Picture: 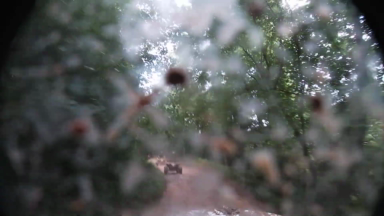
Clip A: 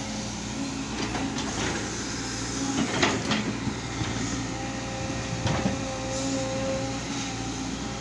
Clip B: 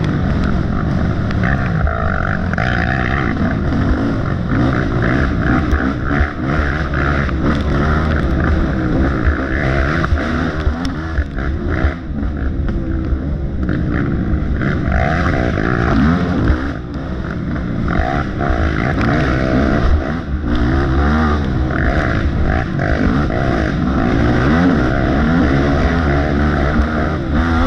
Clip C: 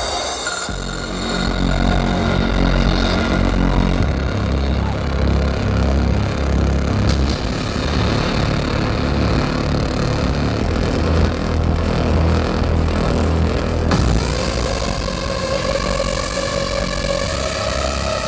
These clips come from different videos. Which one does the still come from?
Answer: B